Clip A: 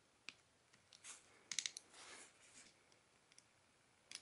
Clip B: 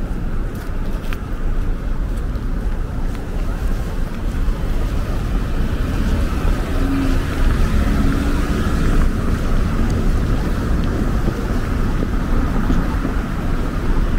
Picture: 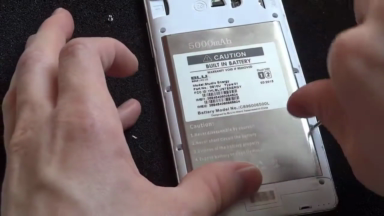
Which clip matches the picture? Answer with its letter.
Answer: A